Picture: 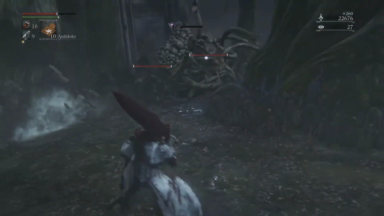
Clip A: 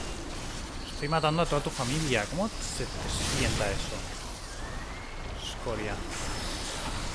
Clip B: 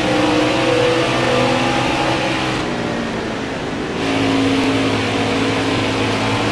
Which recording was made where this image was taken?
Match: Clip A